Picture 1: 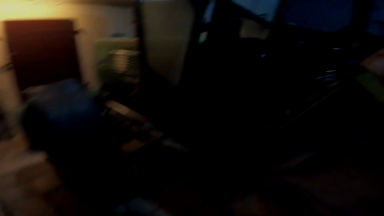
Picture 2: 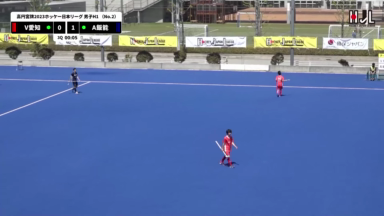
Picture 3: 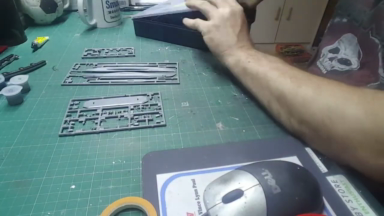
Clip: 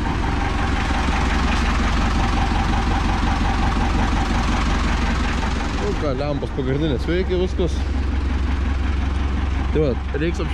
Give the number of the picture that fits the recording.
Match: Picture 1